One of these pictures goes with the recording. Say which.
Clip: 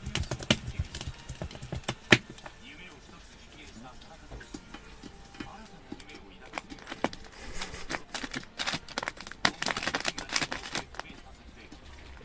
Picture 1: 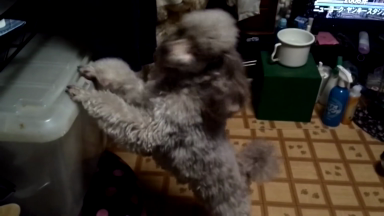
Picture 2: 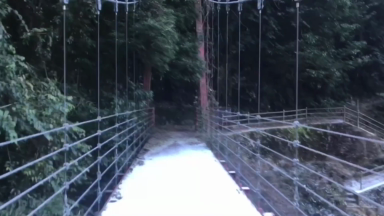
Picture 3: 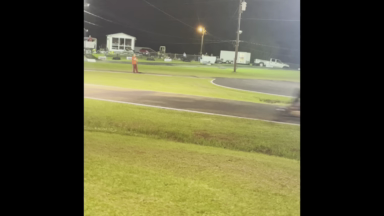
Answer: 1